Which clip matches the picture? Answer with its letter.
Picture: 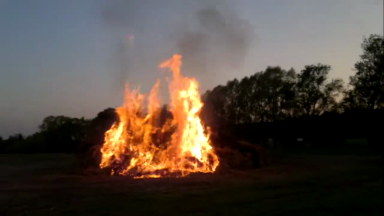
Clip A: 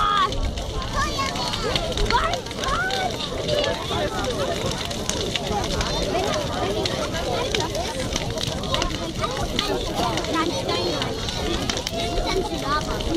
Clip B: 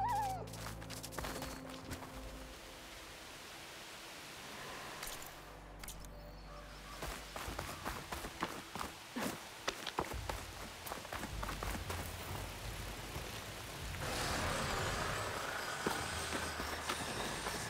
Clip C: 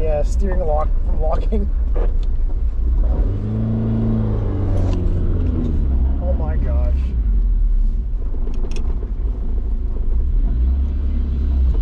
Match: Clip A